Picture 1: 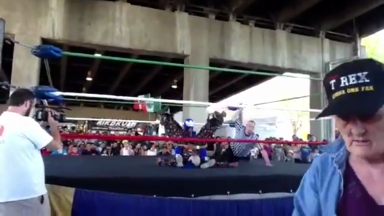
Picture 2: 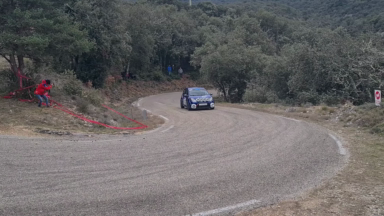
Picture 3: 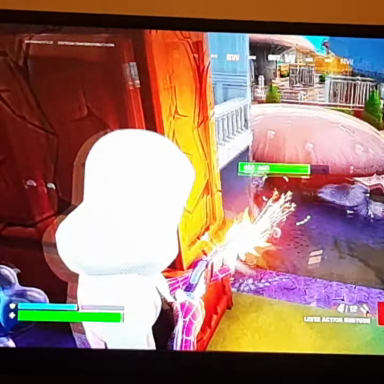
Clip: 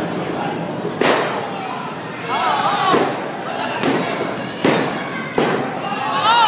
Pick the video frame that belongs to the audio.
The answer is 1